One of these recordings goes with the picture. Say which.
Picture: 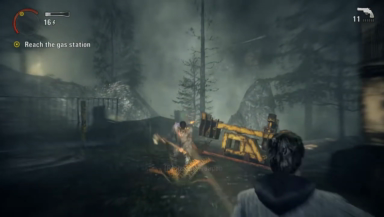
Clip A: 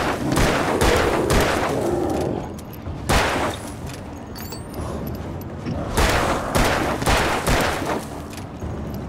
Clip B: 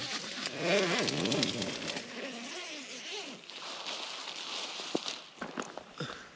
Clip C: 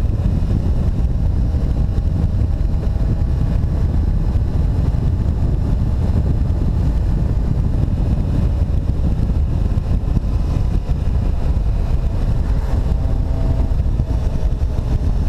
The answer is A